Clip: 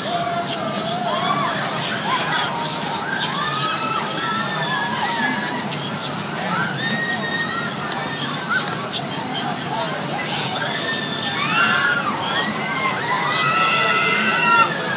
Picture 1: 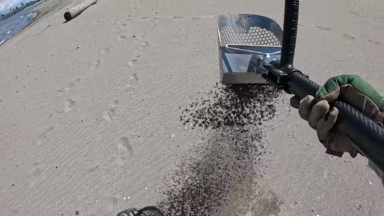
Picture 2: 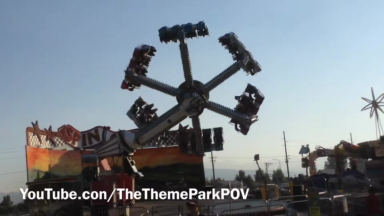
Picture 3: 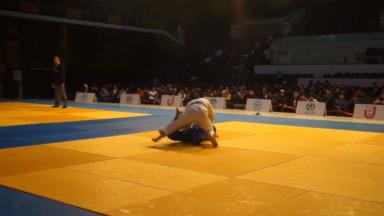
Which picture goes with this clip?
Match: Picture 2